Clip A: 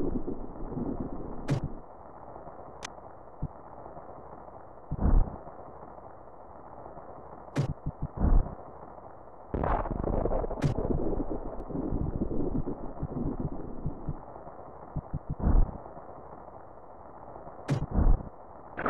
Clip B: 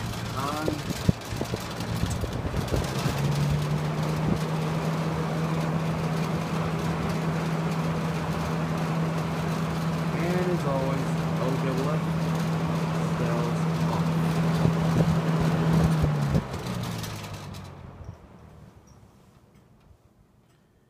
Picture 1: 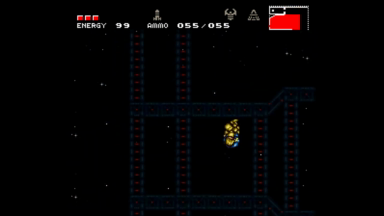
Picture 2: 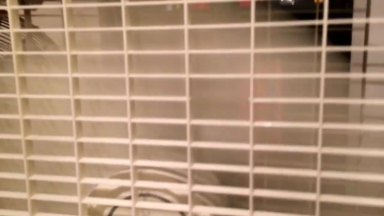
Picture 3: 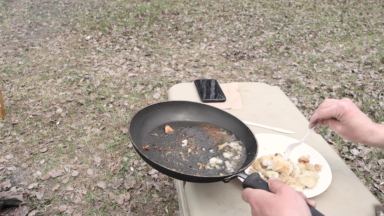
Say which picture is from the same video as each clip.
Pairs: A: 1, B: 2